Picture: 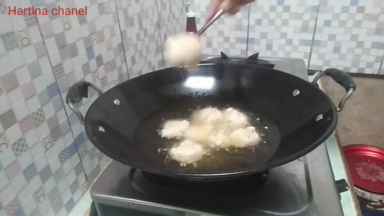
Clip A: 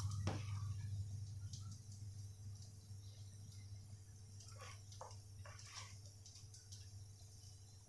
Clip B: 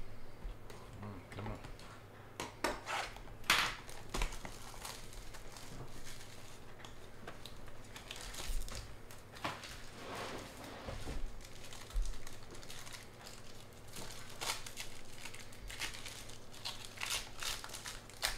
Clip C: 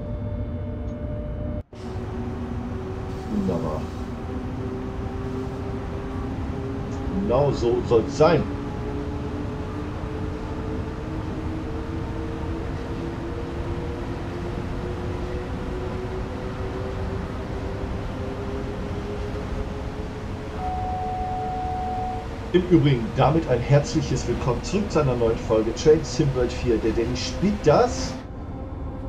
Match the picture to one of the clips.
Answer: A